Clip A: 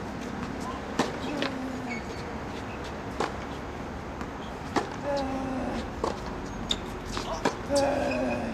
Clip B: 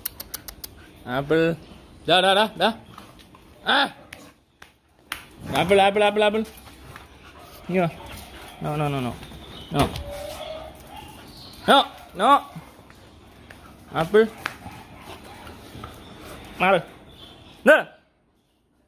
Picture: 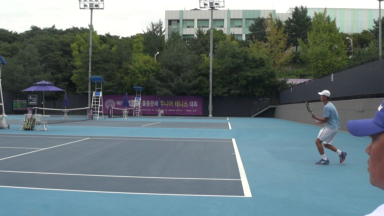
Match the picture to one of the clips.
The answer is A